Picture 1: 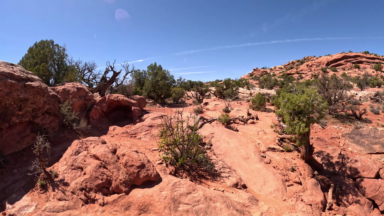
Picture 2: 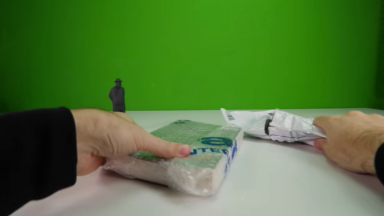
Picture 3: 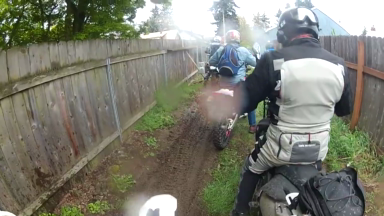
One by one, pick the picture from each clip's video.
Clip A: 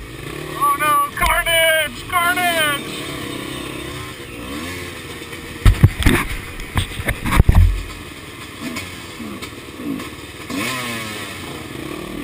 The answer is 3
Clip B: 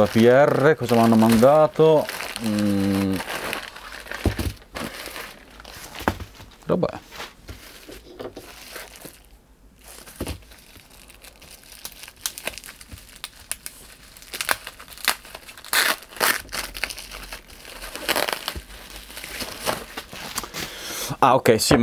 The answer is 2